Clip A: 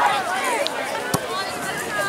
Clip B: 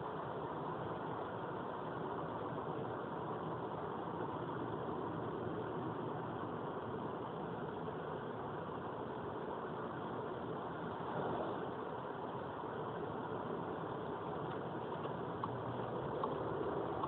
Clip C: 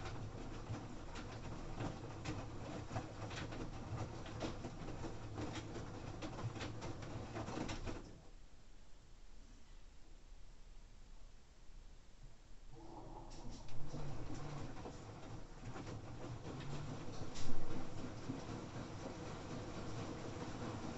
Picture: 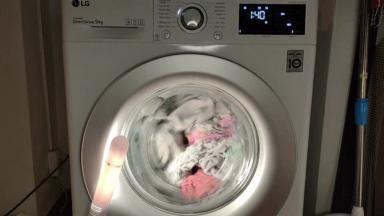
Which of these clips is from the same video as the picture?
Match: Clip C